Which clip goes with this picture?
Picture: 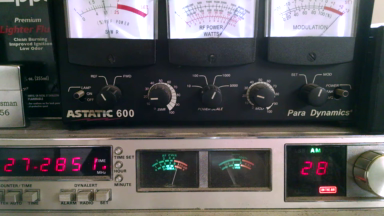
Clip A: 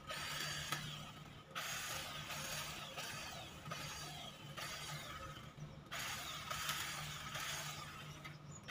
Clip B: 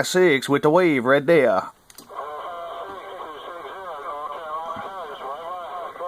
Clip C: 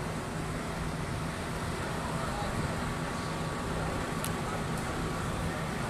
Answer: B